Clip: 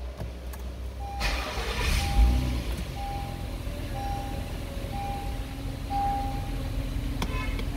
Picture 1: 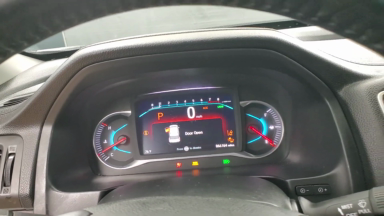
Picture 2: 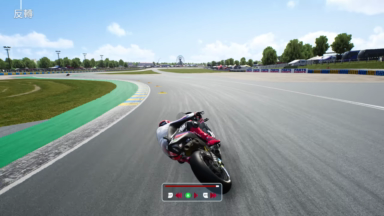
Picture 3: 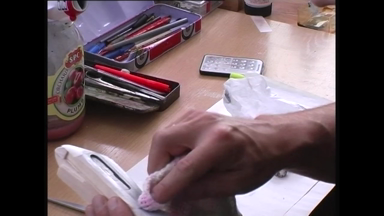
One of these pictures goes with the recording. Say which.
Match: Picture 1